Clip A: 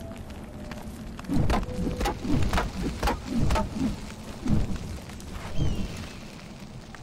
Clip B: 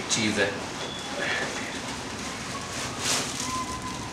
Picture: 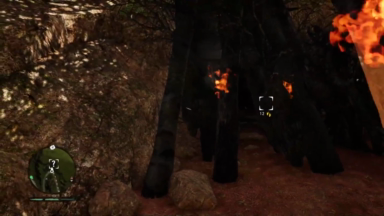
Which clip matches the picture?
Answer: A